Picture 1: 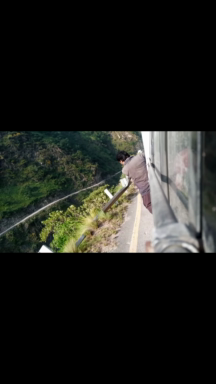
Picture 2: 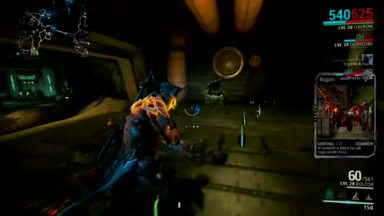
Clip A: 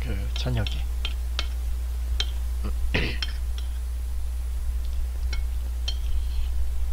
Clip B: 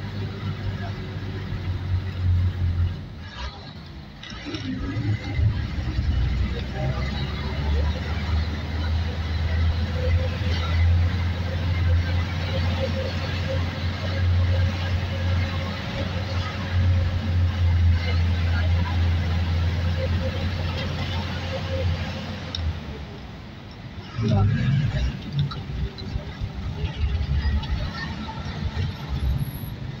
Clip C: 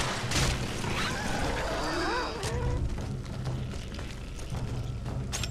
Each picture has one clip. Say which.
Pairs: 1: B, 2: C